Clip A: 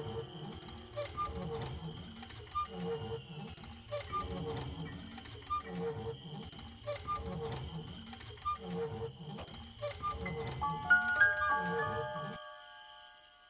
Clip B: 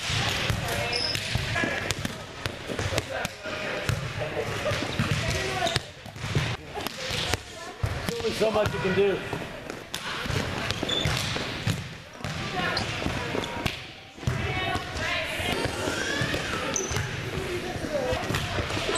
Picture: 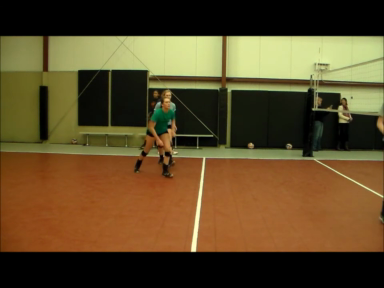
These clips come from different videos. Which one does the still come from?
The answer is B